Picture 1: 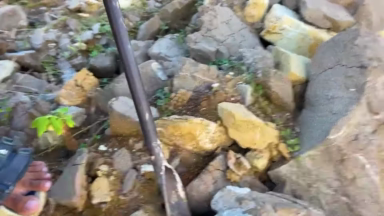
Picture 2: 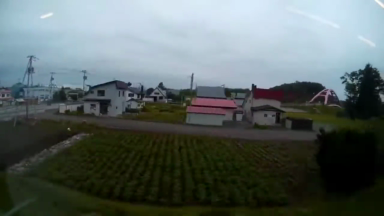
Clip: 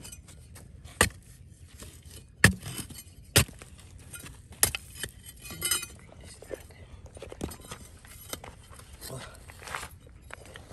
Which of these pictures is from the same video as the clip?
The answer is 1